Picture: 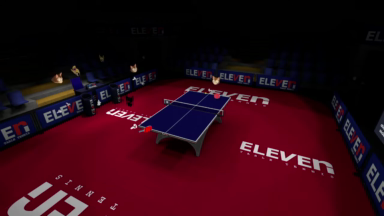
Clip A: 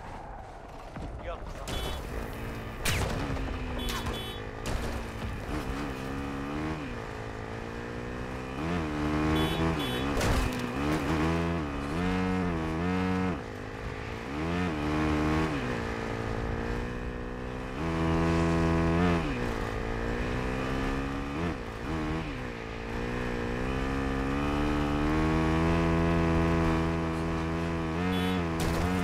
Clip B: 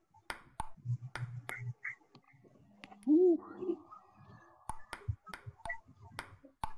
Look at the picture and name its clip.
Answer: B